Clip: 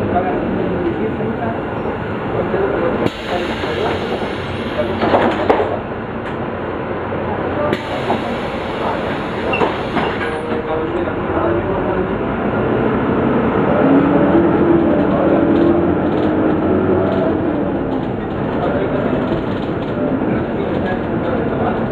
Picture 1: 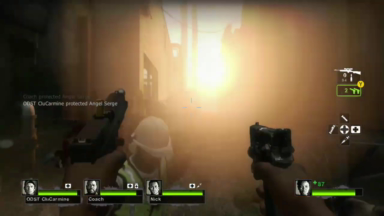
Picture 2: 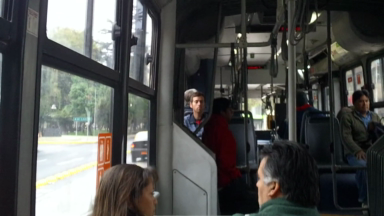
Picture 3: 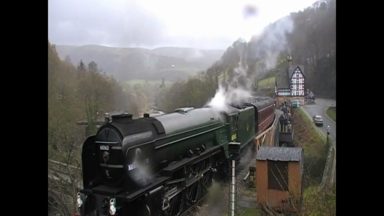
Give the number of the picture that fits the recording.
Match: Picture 2